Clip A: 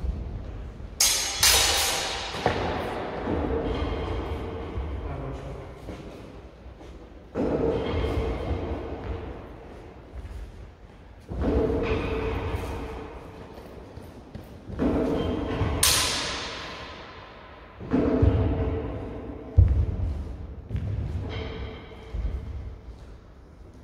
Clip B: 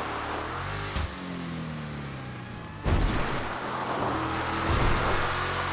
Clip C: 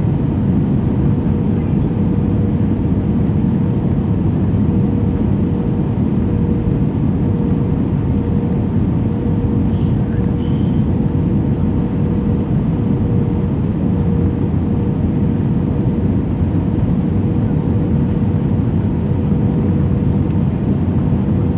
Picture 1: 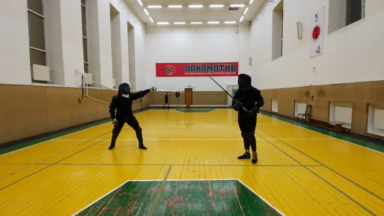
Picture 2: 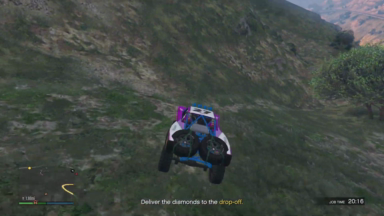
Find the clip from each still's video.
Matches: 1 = A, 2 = B